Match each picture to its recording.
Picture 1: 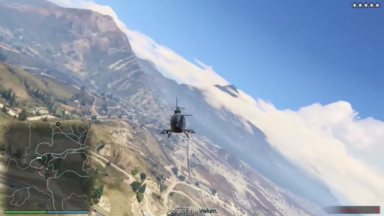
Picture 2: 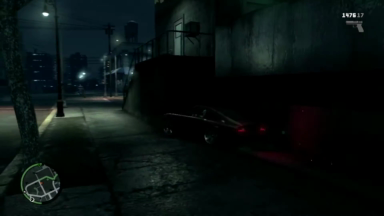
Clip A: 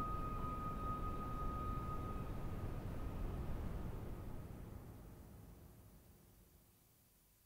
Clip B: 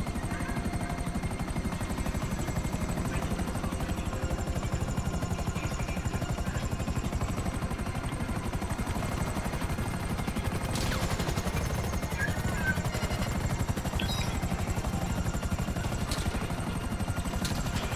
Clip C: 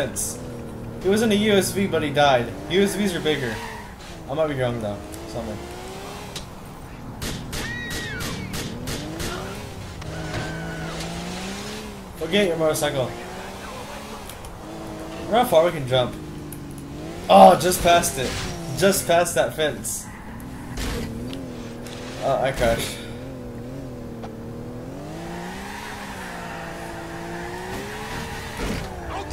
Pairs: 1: B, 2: C